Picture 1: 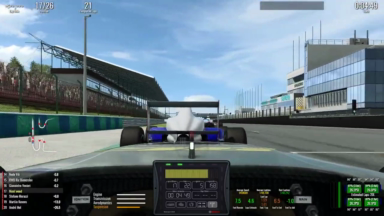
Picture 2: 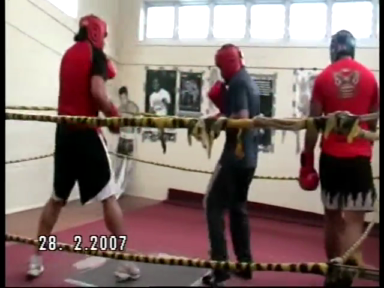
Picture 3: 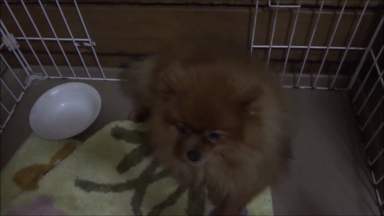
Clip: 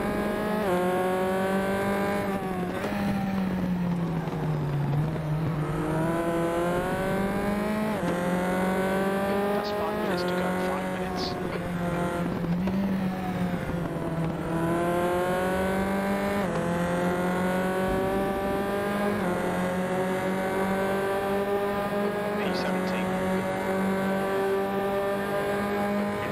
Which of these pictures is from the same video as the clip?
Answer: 1